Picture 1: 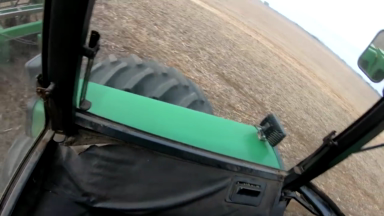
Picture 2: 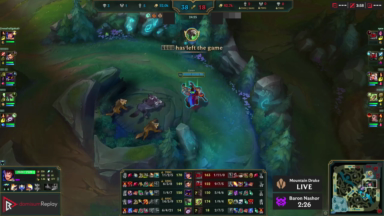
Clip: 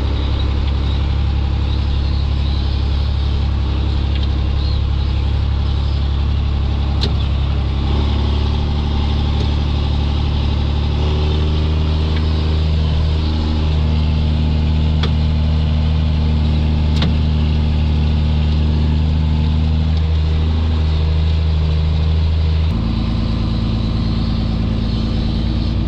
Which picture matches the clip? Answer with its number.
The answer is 1